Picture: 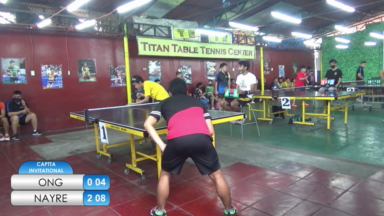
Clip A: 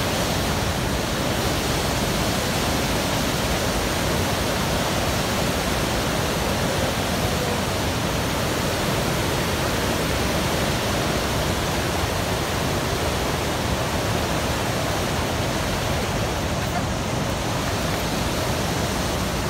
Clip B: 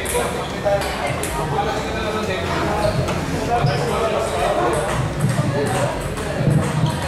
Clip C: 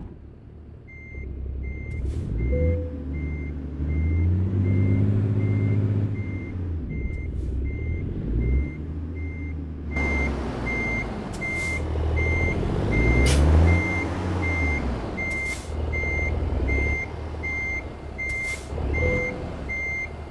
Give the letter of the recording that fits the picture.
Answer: B